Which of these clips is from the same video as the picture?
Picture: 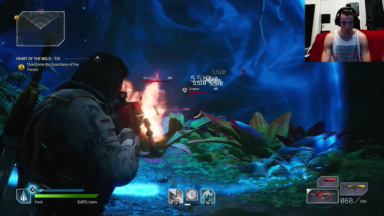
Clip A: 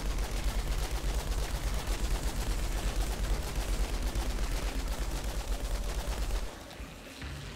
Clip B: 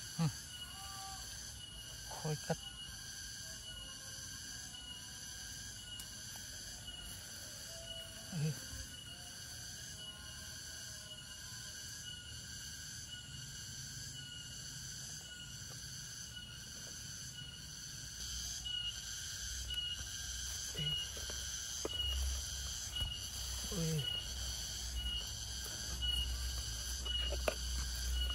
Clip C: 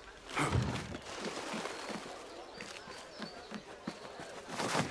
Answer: A